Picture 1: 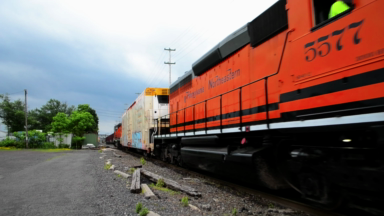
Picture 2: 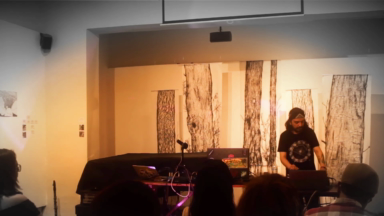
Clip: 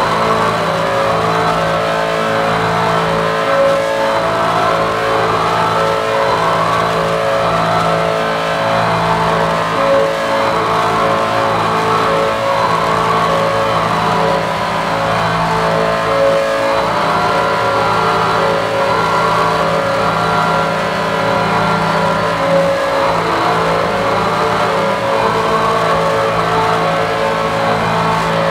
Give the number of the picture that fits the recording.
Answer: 2